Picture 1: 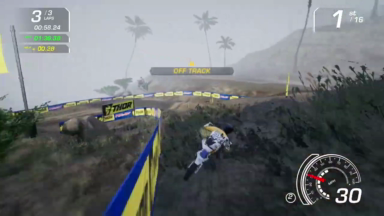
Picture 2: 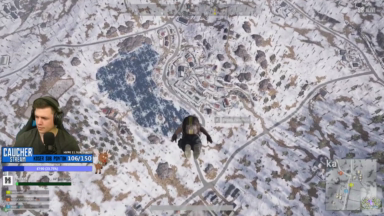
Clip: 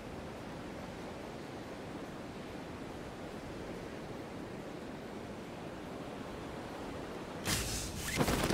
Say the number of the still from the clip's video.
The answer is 2